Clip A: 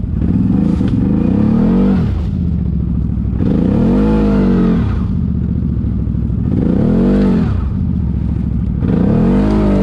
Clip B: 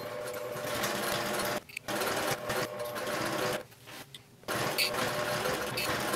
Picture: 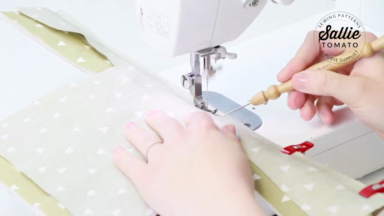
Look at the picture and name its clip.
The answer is B